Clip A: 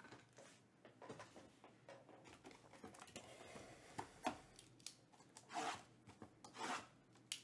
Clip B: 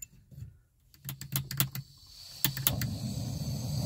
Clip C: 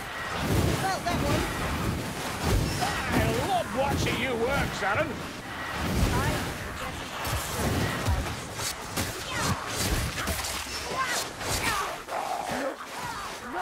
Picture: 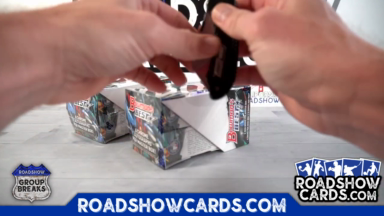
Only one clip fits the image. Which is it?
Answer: A